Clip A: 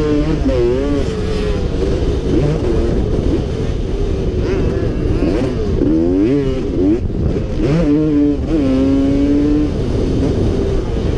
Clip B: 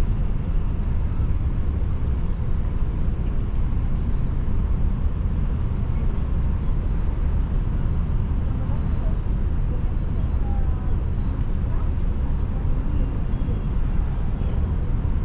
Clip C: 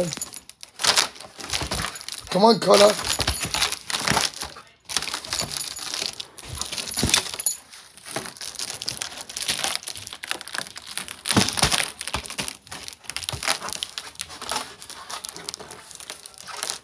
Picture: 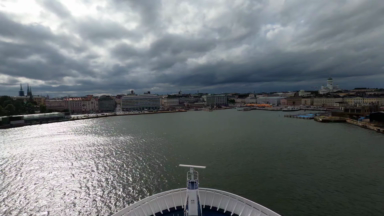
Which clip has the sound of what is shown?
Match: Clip B